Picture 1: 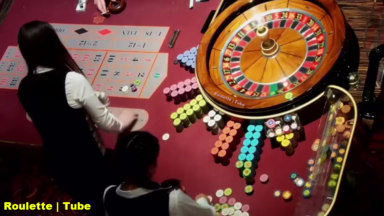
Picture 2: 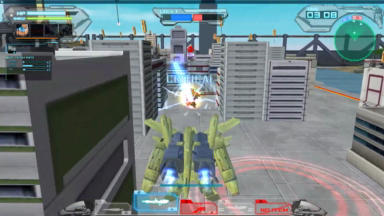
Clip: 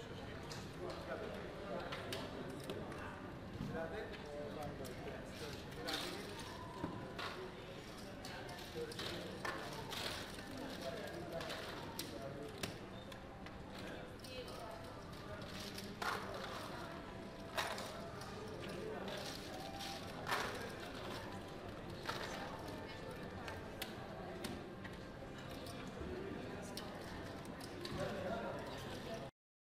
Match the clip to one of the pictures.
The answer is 1